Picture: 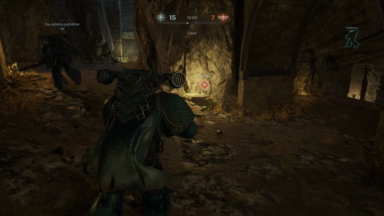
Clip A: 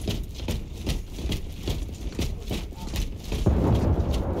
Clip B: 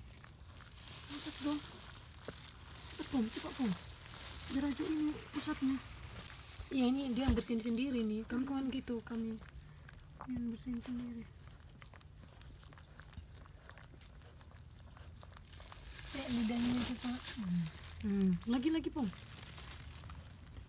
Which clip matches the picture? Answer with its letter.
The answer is A